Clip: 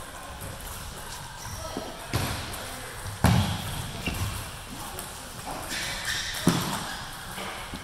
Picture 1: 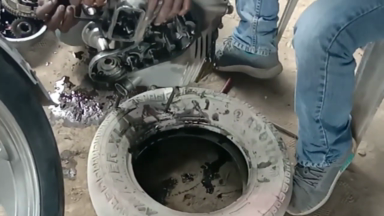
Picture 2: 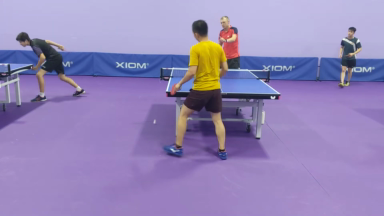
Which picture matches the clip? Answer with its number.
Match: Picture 2